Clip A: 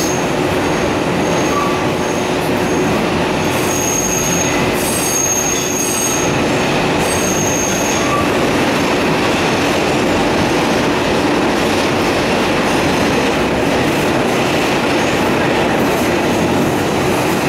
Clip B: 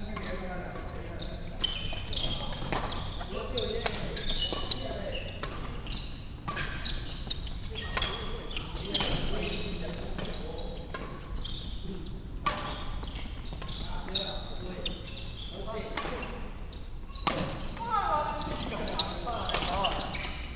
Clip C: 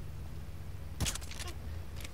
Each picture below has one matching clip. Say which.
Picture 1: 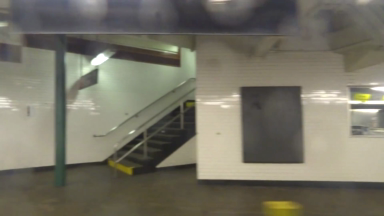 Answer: A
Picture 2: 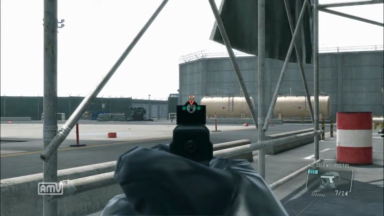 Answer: C